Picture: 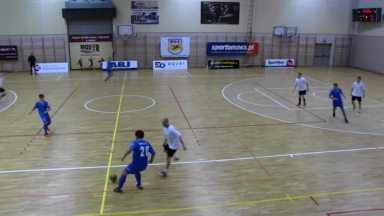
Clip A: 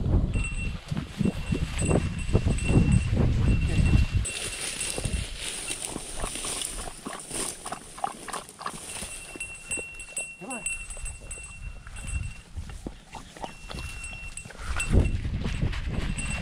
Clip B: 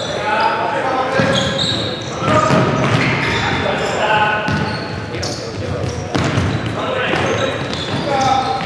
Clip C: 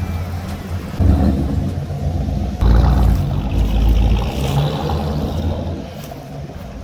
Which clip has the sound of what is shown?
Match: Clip B